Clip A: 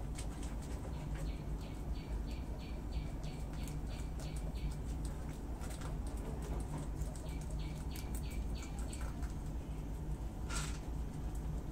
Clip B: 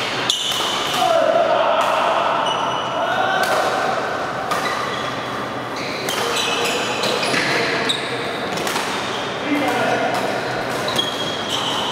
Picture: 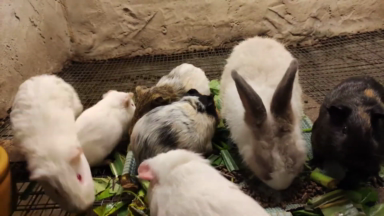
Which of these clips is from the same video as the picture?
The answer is A